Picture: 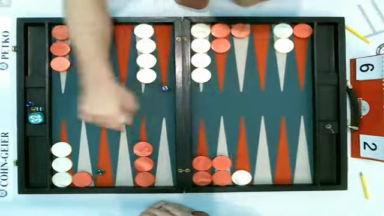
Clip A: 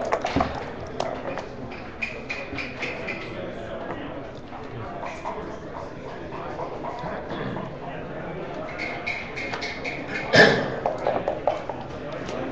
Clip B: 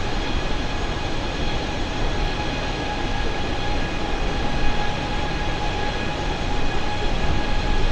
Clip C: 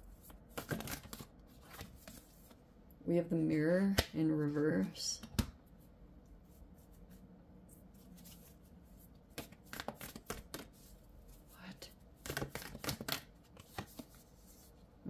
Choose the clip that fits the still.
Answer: A